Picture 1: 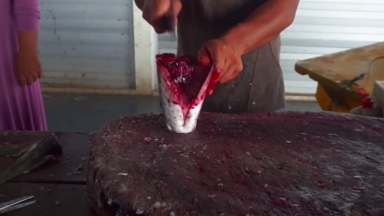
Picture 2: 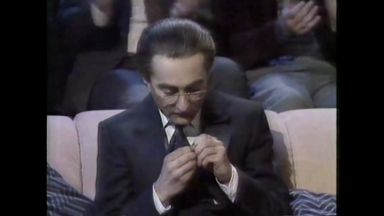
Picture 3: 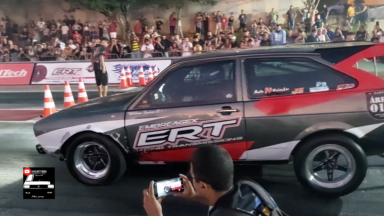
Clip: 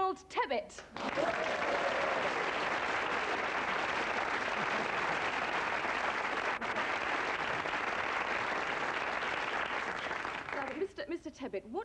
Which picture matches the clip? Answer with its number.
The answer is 2